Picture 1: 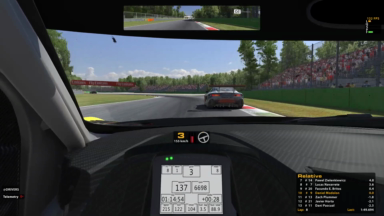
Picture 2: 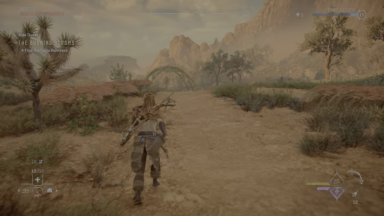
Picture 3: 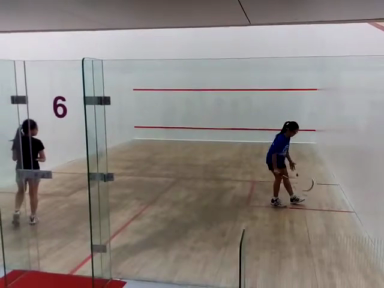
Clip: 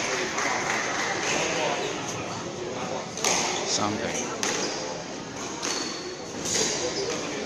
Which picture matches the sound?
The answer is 3